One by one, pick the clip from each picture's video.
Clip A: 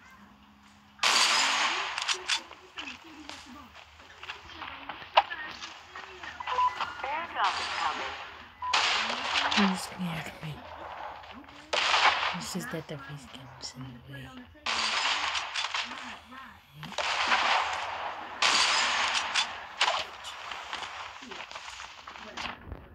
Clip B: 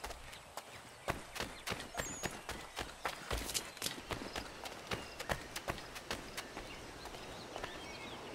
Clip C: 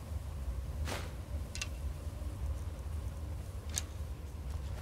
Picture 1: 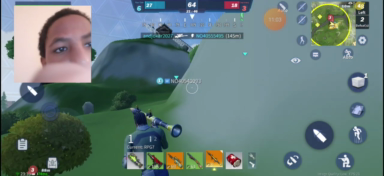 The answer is A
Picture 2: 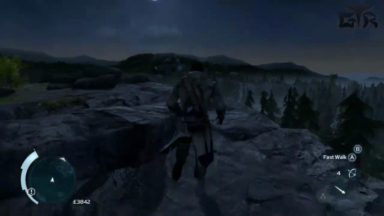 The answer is B